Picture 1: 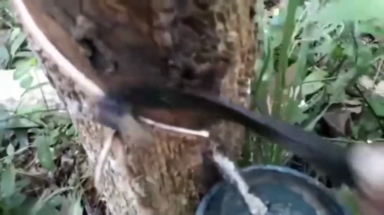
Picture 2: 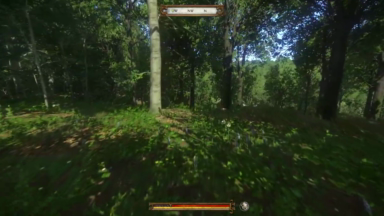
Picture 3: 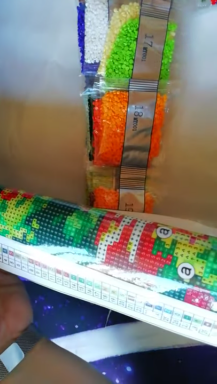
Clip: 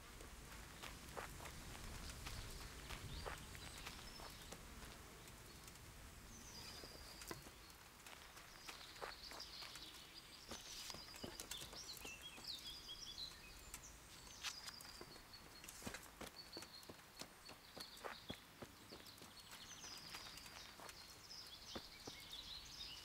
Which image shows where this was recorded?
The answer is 2